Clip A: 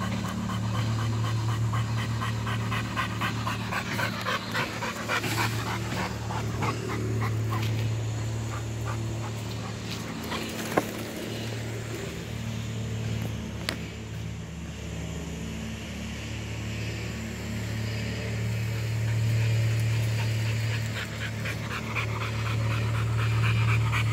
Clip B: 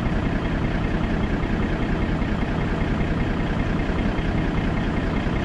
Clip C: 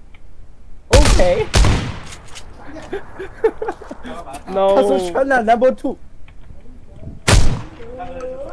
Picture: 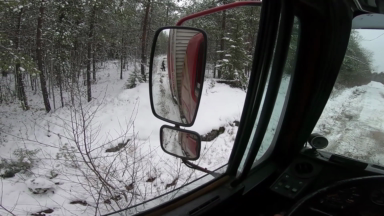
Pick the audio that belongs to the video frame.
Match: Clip B